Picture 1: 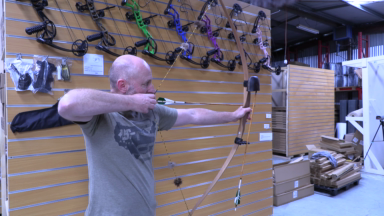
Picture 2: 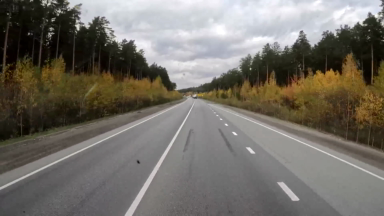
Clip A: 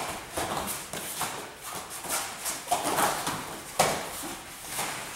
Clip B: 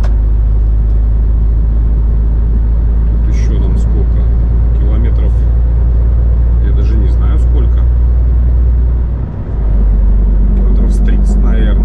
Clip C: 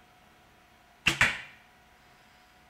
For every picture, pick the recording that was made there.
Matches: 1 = C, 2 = B